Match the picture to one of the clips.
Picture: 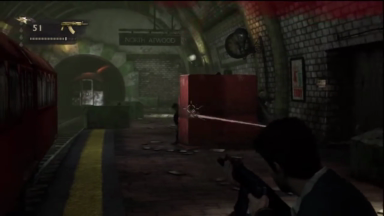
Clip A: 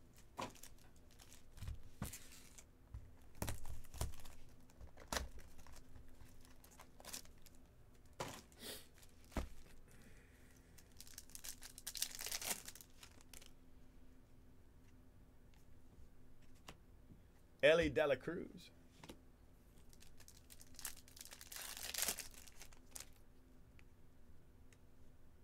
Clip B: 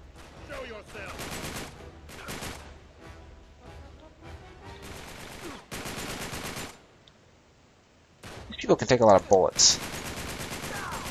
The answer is B